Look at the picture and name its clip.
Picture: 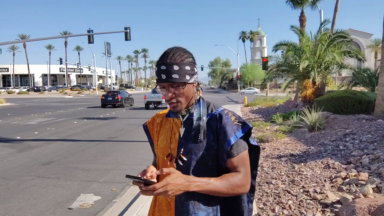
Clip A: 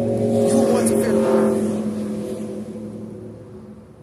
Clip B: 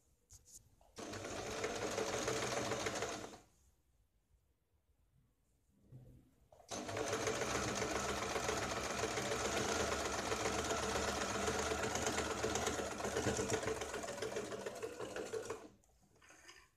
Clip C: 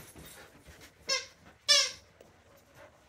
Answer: A